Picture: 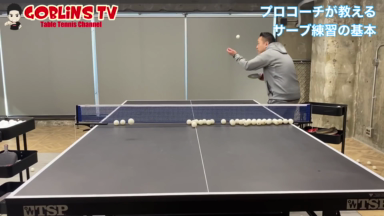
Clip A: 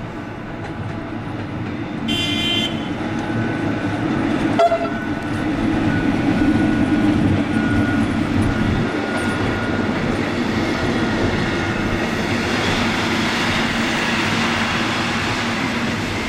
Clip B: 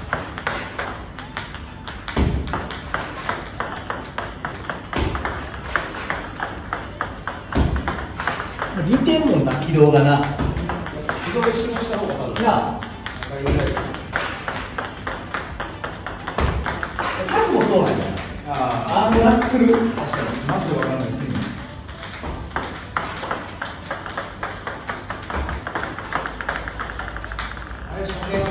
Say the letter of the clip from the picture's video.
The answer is B